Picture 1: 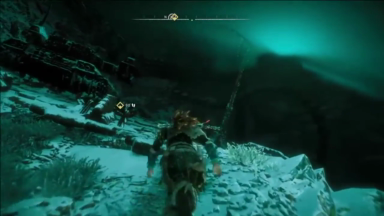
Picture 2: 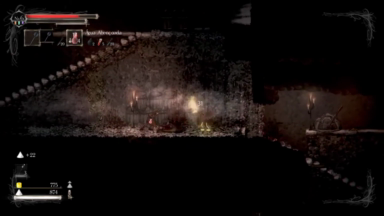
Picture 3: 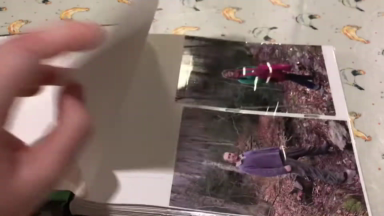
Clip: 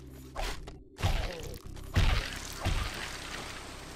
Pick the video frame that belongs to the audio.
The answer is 2